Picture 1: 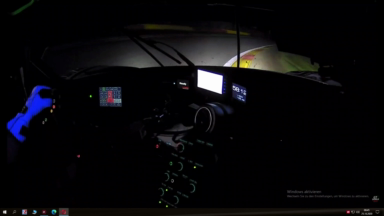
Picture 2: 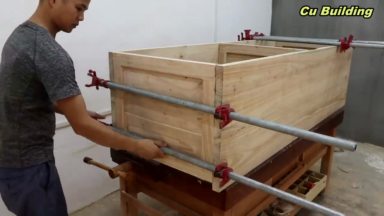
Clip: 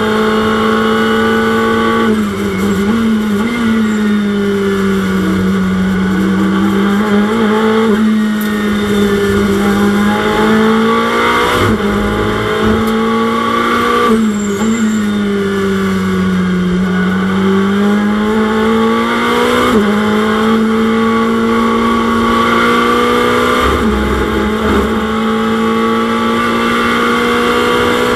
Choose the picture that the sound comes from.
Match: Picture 1